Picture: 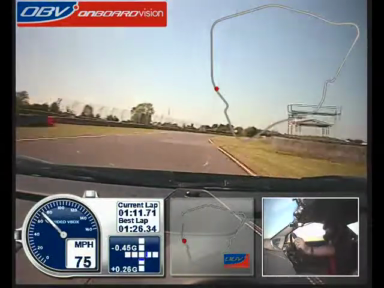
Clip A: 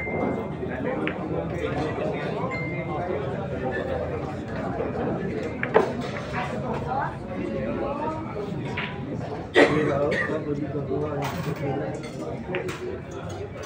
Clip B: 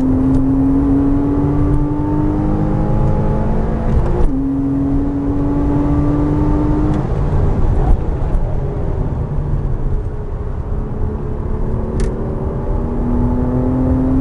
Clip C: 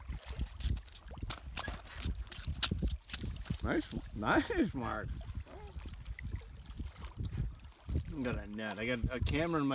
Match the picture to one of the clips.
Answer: B